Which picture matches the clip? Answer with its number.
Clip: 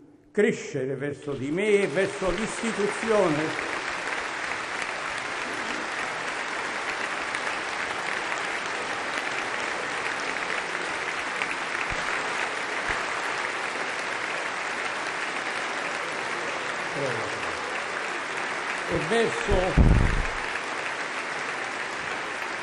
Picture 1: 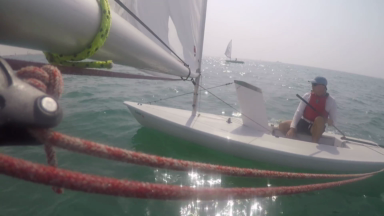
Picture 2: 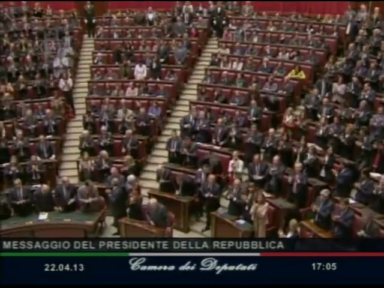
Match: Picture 2